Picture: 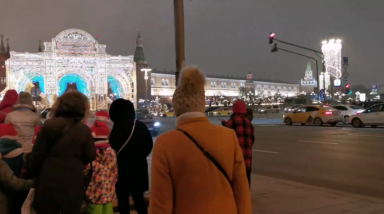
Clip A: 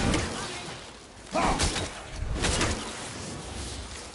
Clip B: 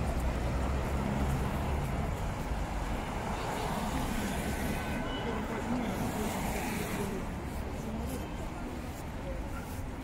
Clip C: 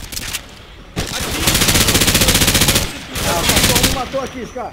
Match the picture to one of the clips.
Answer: B